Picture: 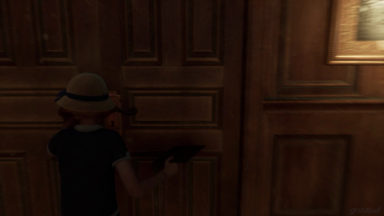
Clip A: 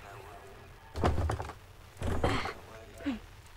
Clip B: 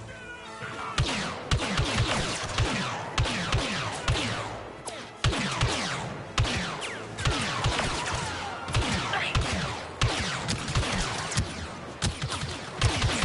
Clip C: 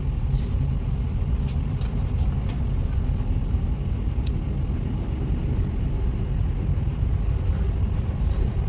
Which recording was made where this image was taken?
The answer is A